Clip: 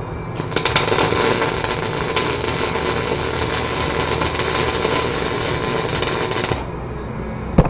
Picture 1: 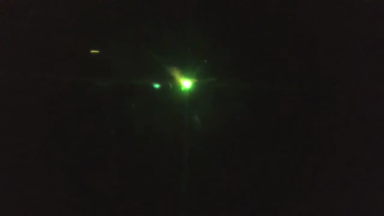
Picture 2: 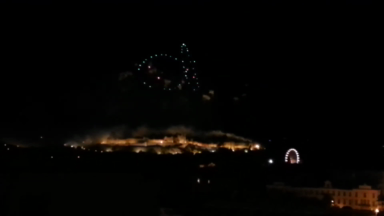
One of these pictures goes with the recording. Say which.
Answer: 1